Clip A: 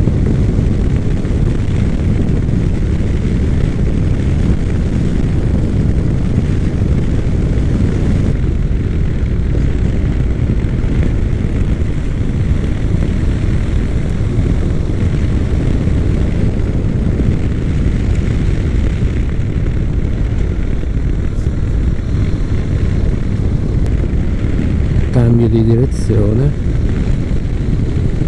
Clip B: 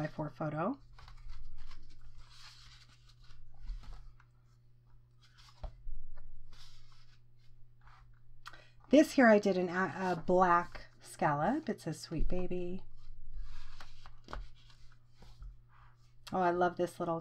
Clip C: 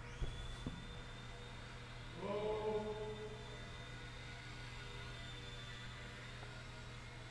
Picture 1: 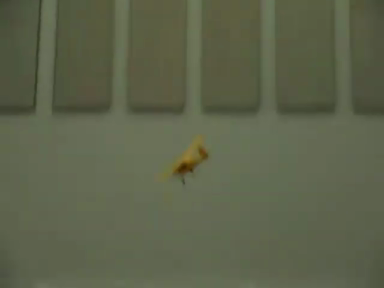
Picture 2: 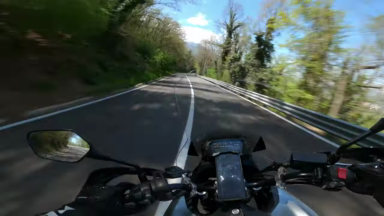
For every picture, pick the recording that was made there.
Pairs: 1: C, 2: A